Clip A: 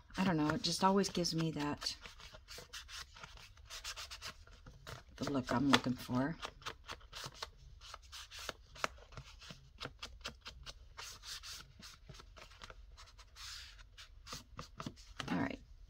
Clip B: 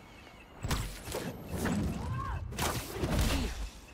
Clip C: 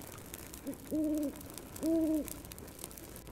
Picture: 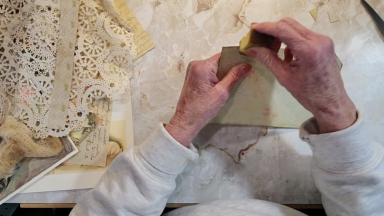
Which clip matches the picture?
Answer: A